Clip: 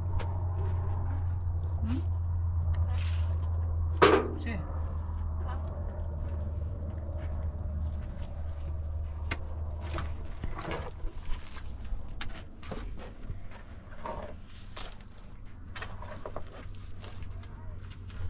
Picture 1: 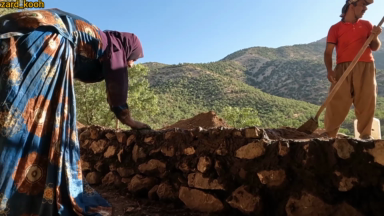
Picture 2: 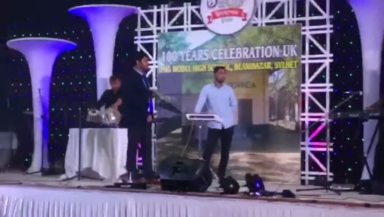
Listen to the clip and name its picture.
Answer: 1